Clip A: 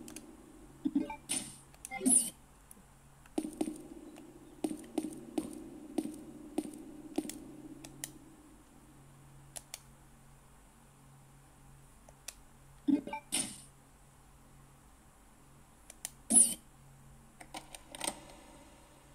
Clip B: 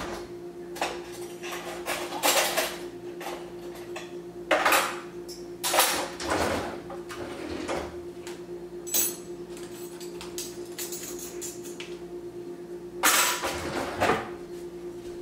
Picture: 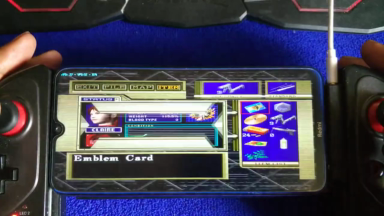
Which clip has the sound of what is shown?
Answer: A